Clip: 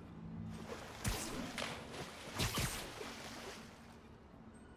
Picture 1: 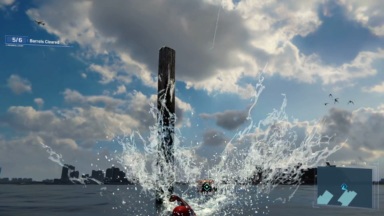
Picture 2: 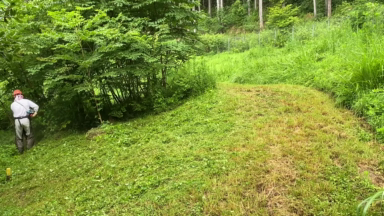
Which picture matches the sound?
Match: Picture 1